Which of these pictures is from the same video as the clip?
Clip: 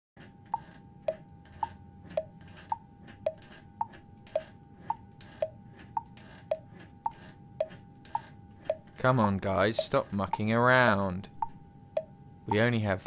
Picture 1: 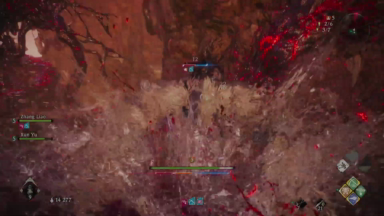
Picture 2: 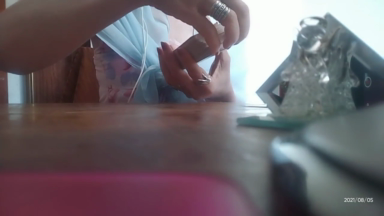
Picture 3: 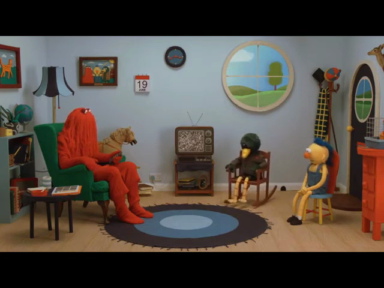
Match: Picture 3